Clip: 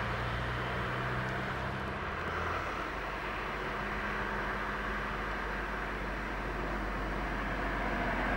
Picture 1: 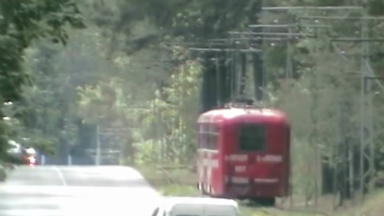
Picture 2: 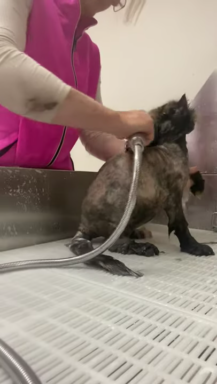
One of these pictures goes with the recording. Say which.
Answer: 1